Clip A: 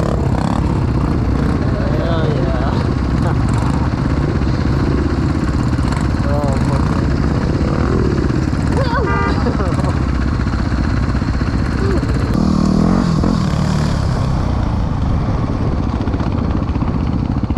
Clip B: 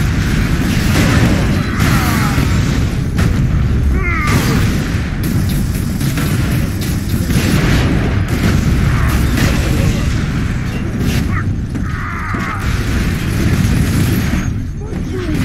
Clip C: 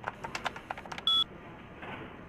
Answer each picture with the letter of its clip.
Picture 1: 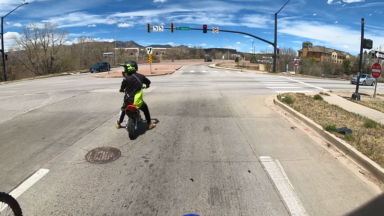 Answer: A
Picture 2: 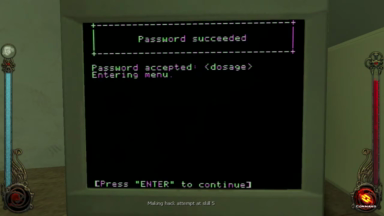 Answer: C